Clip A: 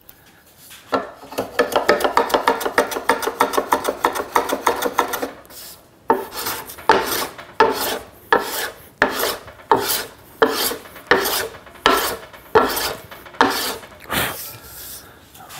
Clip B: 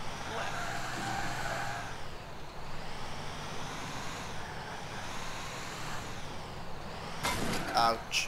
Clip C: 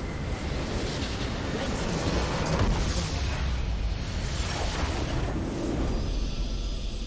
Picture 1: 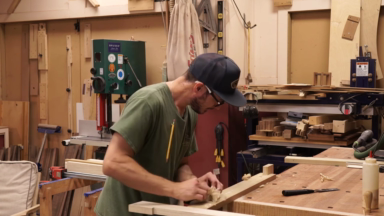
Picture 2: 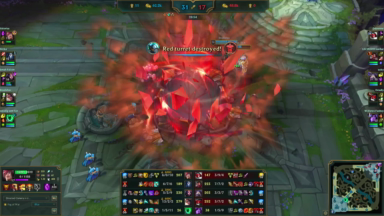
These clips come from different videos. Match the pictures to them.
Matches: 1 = A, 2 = C